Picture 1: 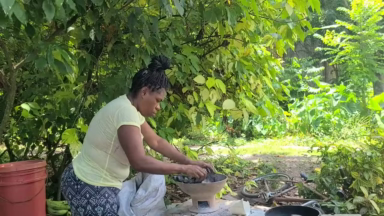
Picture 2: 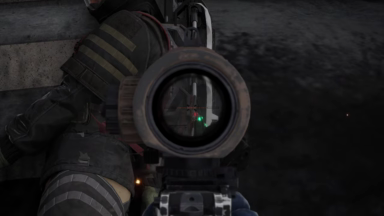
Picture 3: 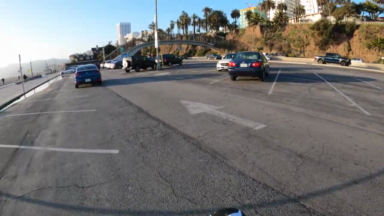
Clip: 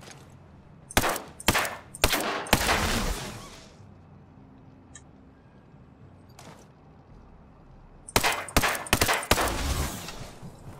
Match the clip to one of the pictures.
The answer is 2